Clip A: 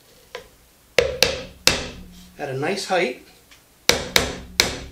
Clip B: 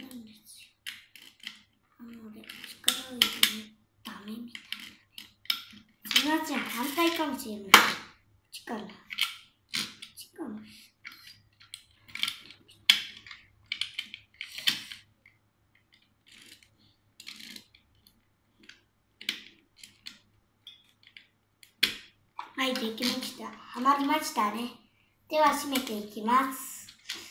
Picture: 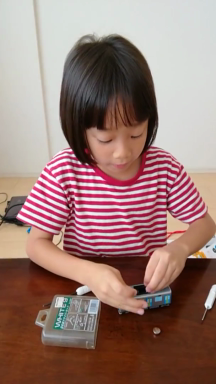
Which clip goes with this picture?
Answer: B